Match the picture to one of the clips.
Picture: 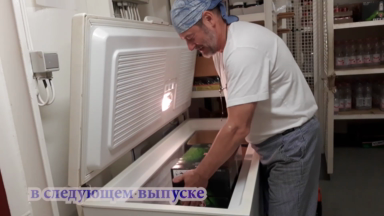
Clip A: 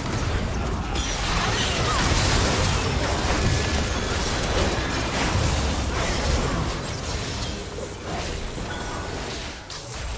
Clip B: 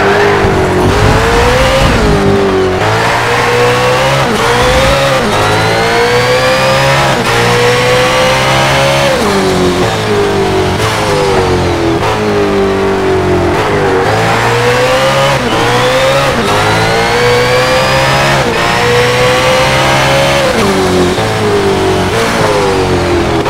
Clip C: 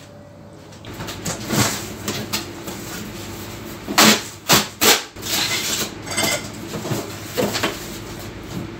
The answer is C